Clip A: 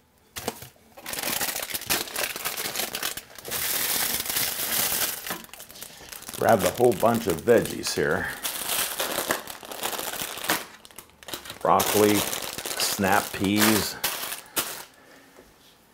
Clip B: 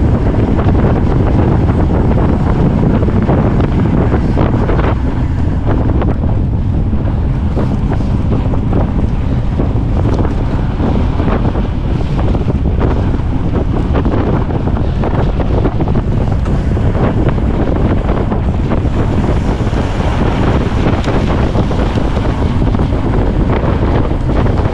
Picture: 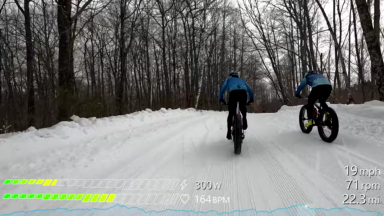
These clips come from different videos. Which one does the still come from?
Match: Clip B